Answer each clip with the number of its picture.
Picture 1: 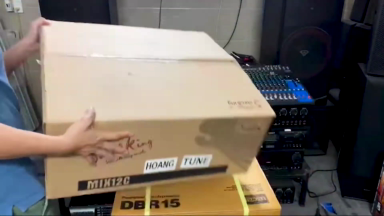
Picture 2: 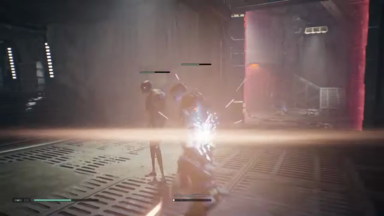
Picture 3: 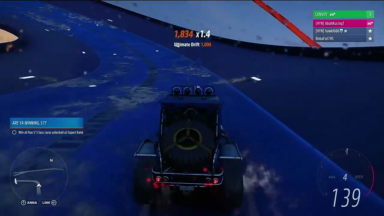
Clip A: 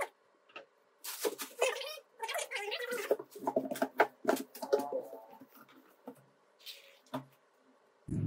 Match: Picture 1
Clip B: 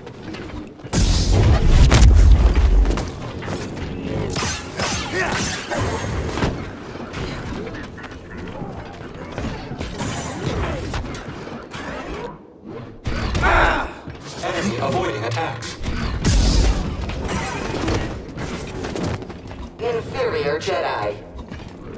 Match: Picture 2